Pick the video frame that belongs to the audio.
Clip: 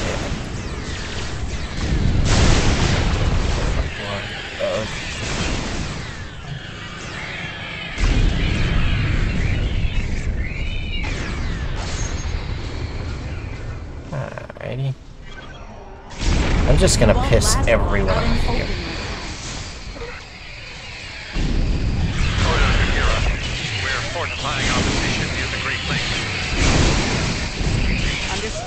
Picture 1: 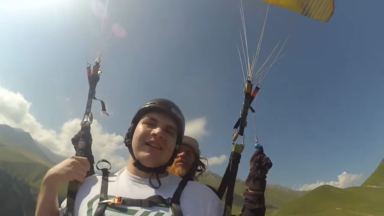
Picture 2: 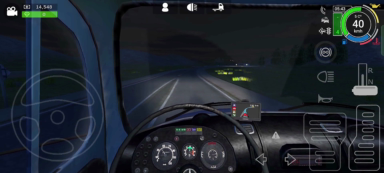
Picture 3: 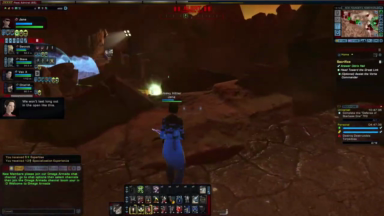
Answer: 3